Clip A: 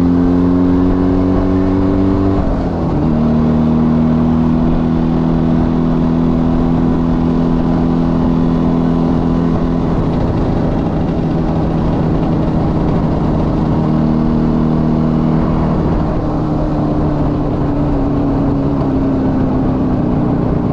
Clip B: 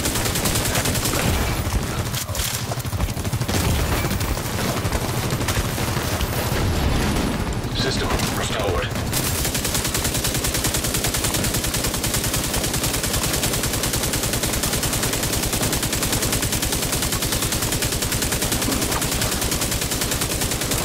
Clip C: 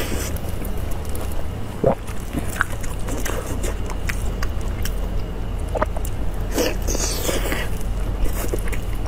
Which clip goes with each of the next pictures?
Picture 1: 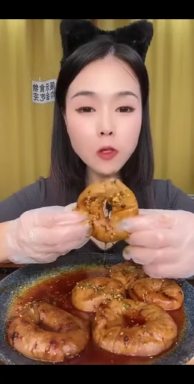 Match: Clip C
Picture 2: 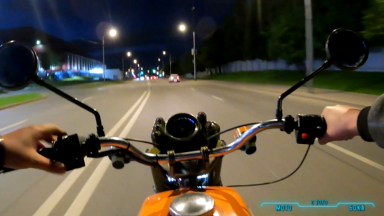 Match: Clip A